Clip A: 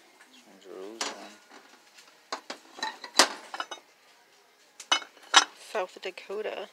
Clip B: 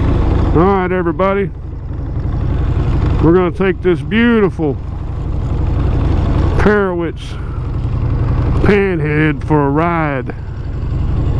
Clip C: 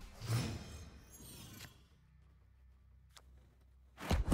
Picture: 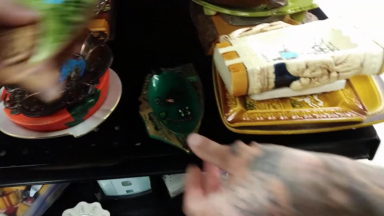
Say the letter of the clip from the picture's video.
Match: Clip A